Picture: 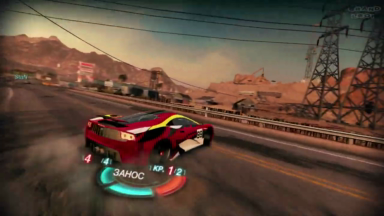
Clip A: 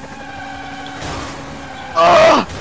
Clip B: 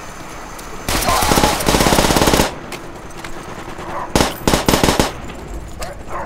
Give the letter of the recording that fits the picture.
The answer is A